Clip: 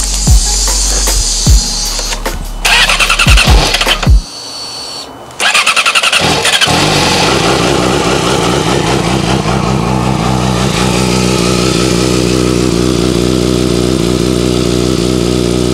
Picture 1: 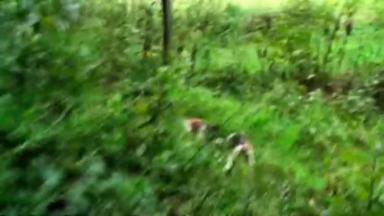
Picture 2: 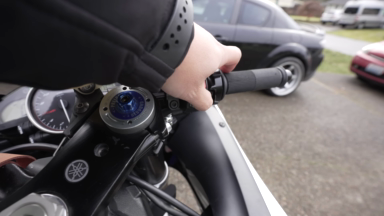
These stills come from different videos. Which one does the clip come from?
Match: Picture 2